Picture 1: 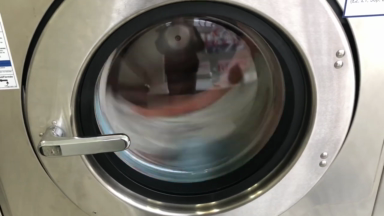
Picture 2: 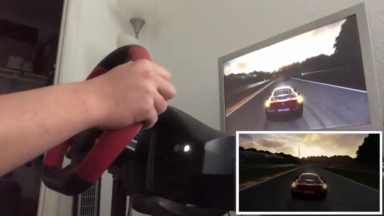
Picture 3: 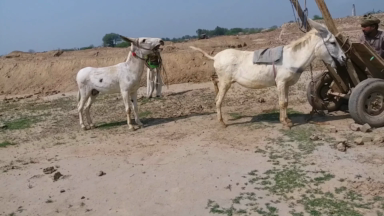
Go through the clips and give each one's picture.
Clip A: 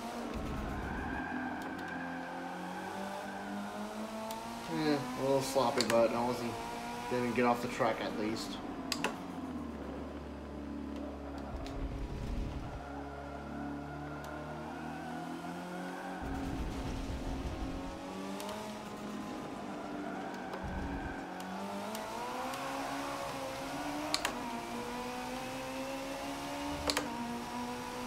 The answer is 2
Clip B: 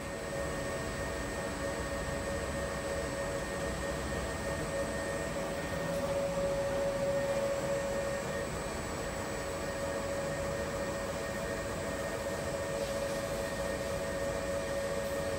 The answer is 1